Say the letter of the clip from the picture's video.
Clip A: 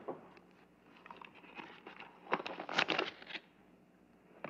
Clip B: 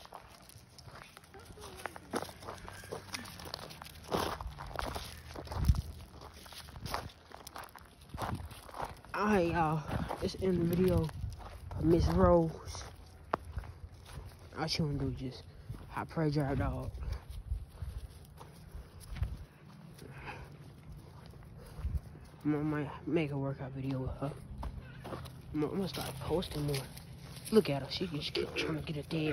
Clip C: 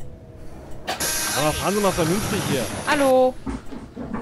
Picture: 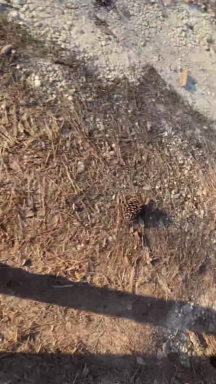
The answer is B